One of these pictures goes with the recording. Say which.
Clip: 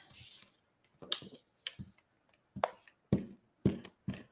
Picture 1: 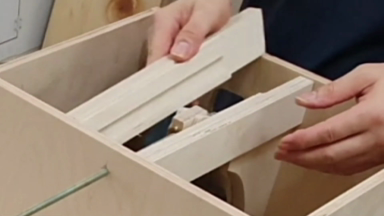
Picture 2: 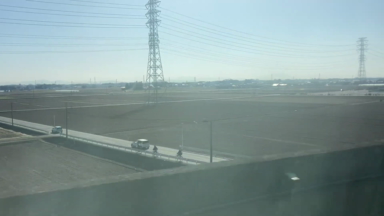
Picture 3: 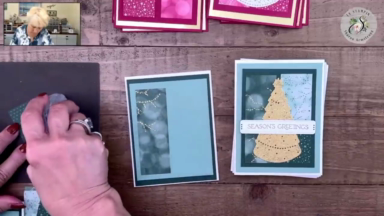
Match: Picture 3